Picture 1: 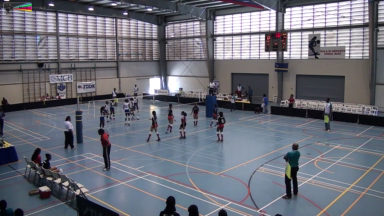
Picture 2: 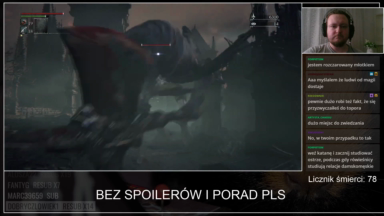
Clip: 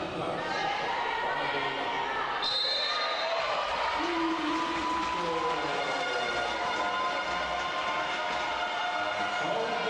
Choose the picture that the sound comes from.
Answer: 1